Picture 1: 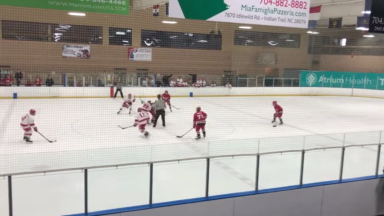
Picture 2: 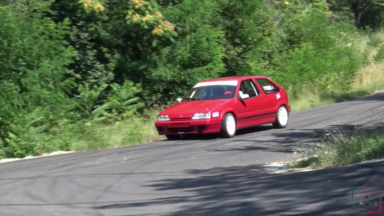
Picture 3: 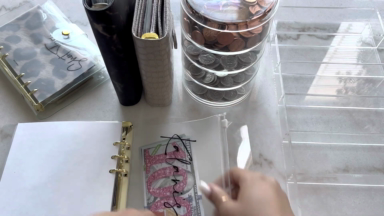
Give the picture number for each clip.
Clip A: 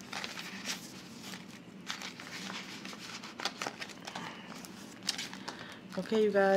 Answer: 3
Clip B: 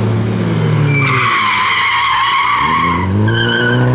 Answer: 2